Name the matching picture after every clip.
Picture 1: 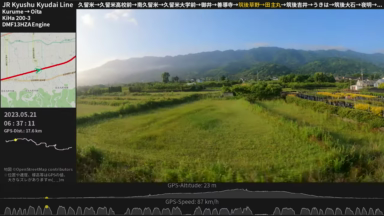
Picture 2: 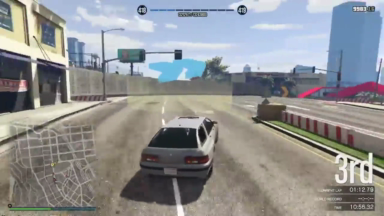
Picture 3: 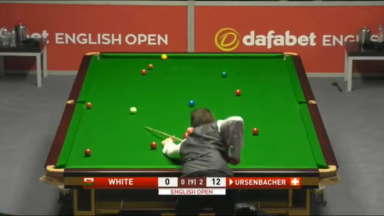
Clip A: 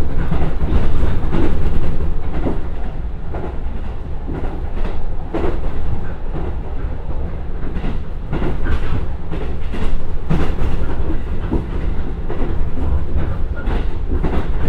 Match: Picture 1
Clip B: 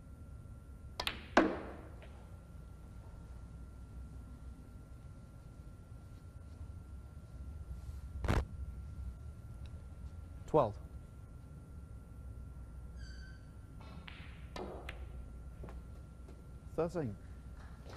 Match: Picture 3